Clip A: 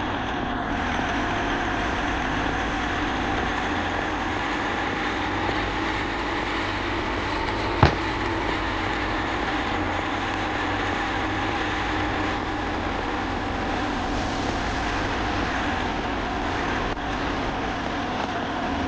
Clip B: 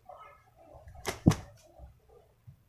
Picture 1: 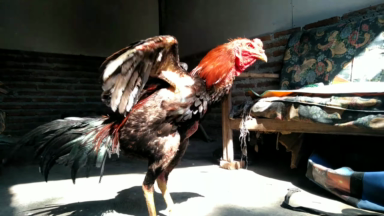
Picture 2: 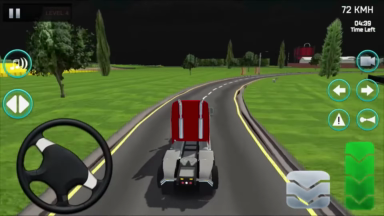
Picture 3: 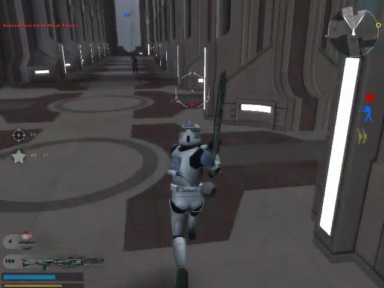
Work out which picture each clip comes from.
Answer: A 2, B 1